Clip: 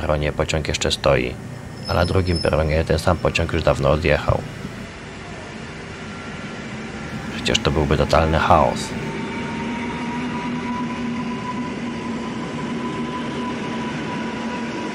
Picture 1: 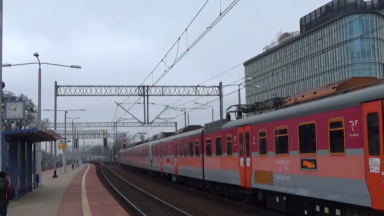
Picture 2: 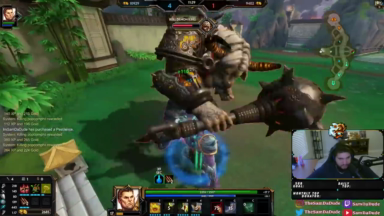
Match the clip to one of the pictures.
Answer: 1